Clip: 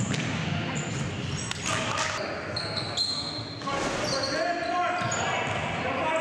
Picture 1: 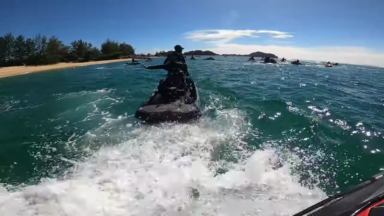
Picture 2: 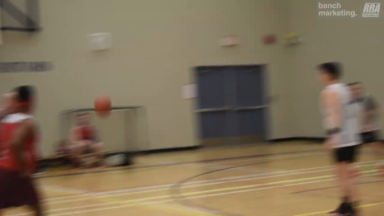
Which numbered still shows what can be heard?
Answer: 2